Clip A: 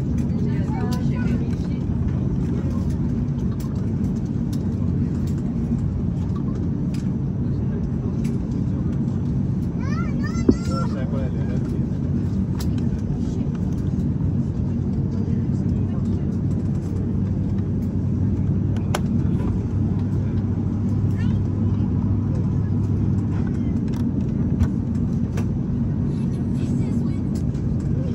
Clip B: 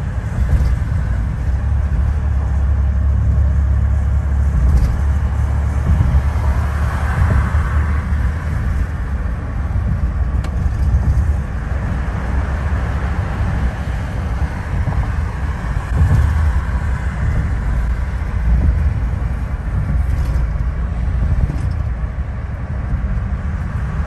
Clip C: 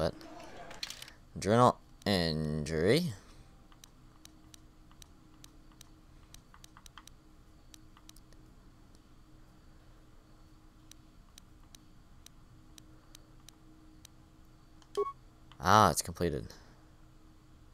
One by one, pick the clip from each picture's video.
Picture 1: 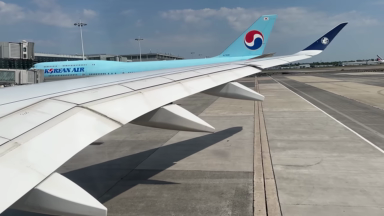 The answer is A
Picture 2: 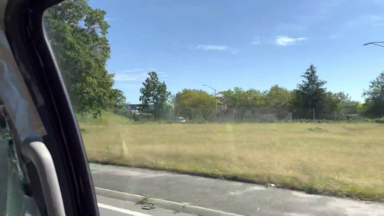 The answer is B